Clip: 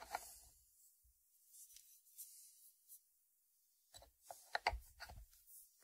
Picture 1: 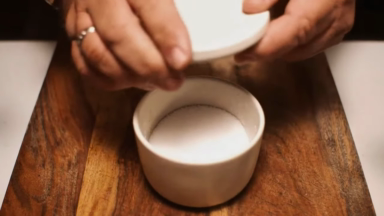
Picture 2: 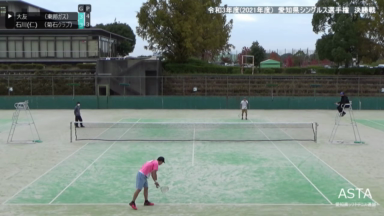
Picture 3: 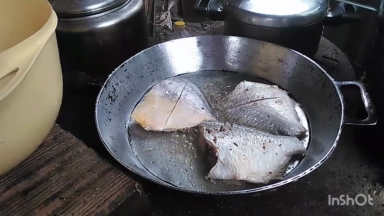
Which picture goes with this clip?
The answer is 1